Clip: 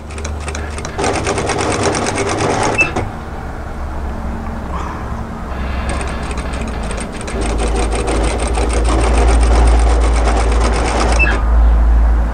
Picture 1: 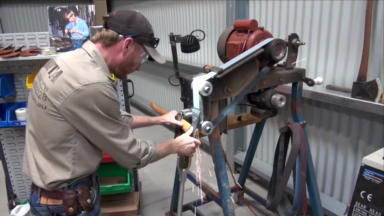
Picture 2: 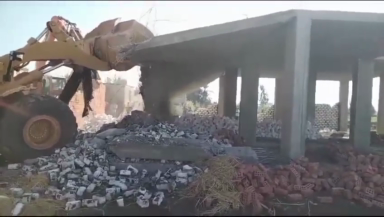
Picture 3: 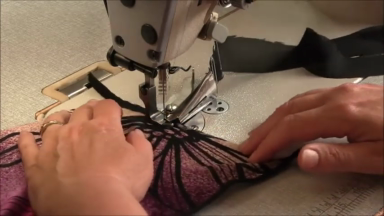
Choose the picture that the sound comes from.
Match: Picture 3